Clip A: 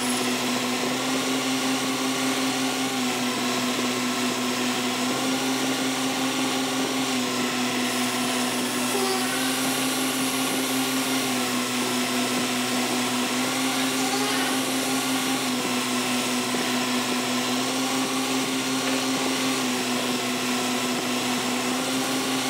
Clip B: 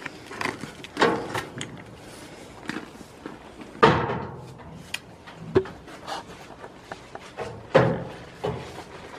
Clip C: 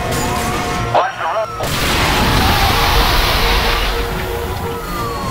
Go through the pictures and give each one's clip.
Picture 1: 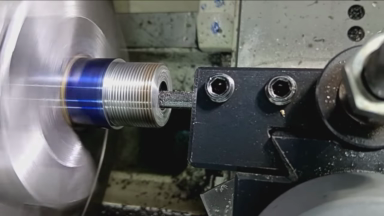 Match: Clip A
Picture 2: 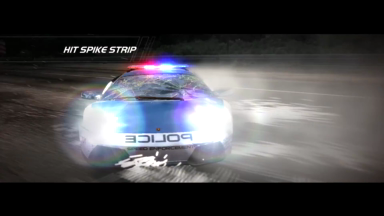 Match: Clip C